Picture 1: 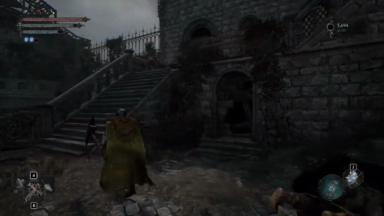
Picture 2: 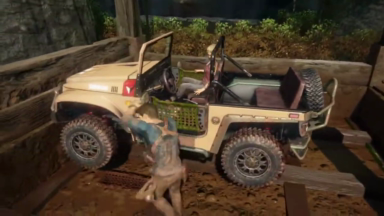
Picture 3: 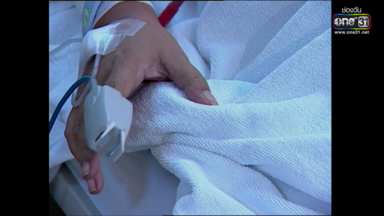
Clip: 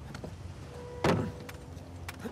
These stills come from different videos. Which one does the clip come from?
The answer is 2